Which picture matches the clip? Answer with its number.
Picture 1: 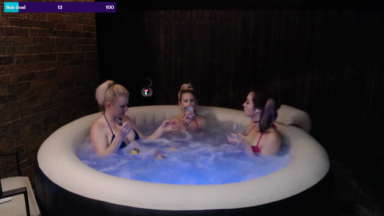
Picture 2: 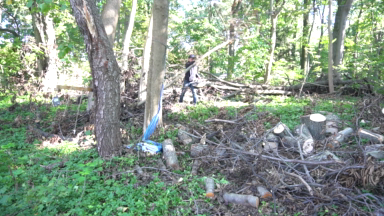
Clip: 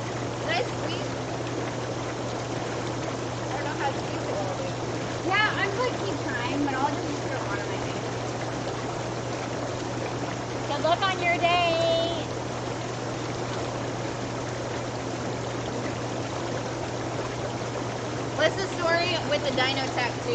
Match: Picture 1